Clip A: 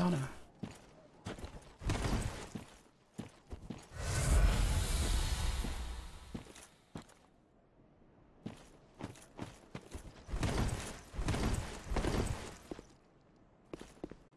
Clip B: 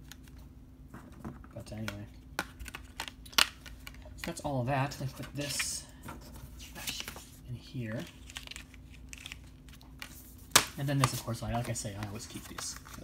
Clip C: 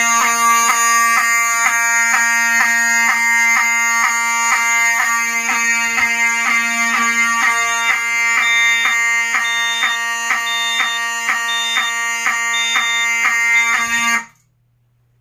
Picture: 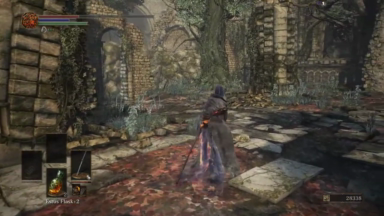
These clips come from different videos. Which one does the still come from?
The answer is A